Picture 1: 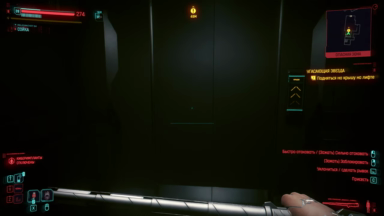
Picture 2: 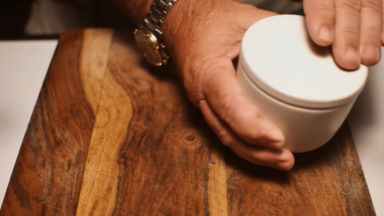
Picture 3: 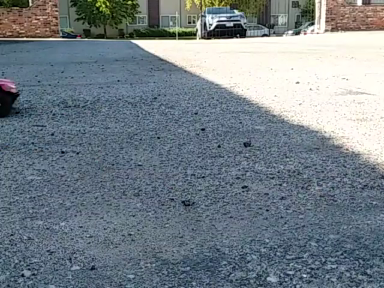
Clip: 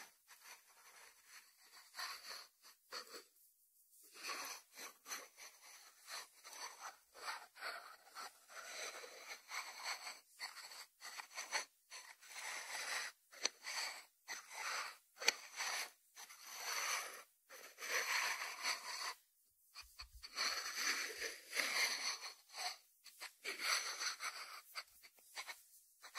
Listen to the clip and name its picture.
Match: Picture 2